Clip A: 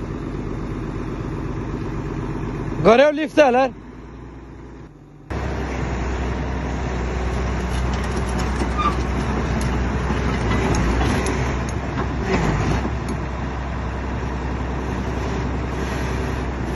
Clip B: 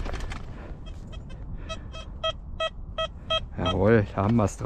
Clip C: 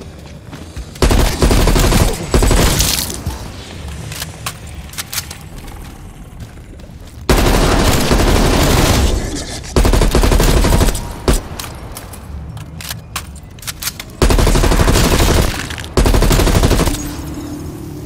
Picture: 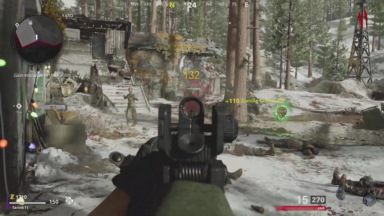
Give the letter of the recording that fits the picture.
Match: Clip C